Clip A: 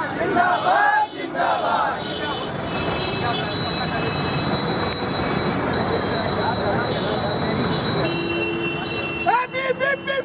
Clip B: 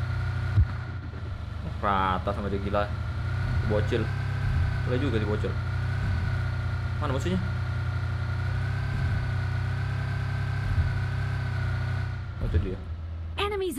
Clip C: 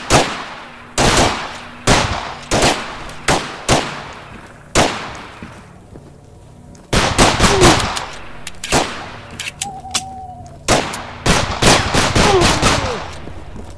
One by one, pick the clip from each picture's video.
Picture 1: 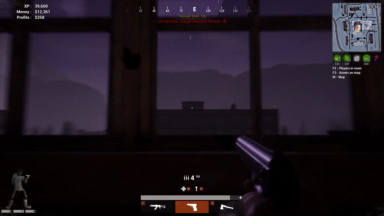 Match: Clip C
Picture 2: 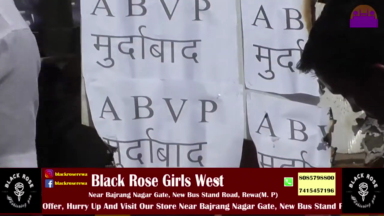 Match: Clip A